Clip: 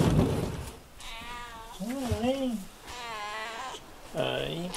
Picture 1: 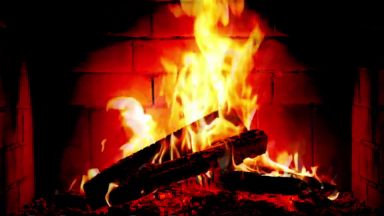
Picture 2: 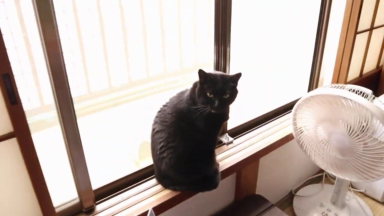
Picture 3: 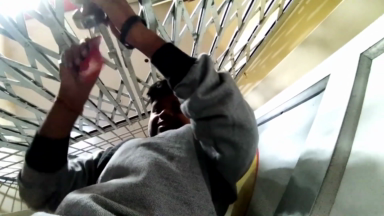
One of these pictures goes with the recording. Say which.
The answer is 2